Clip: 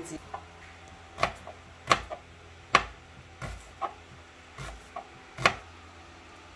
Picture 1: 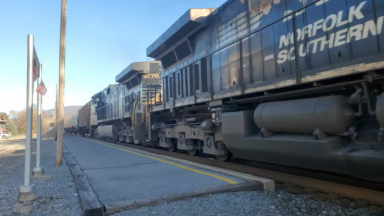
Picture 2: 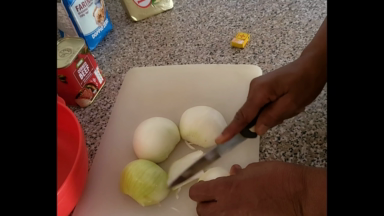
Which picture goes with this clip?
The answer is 2